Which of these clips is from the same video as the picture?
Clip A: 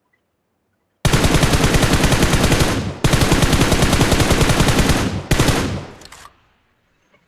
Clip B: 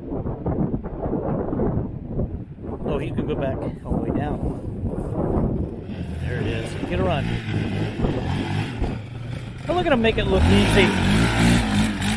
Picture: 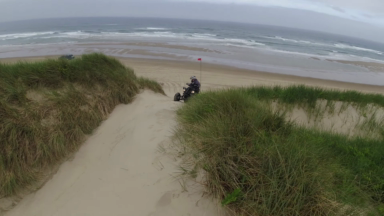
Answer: B